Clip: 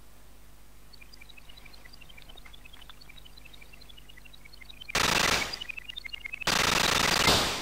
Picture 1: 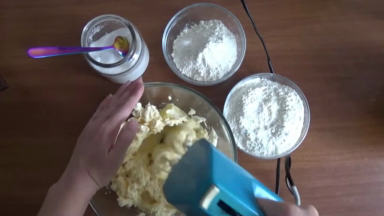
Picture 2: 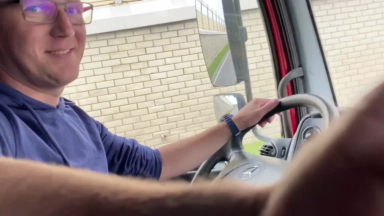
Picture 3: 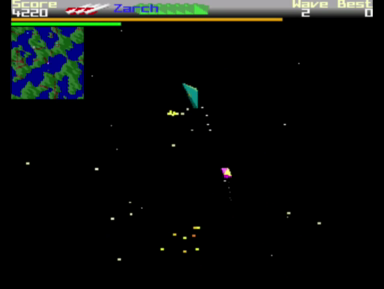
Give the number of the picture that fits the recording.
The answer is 3